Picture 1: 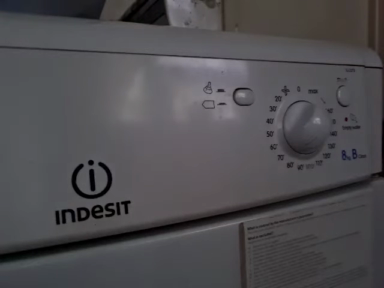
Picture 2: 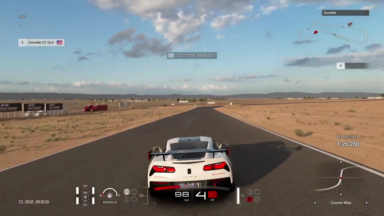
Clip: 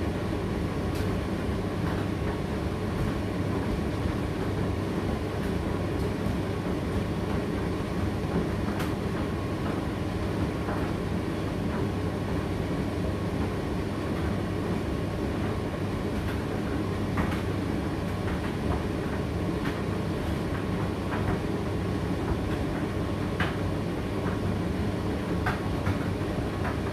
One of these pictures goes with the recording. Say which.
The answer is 1